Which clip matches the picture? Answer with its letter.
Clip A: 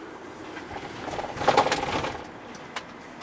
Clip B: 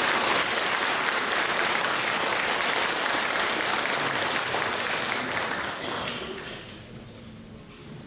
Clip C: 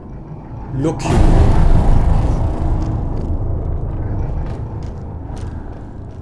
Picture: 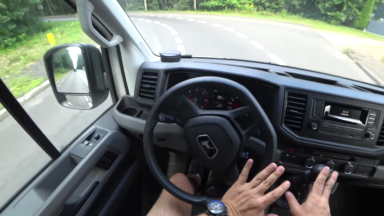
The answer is A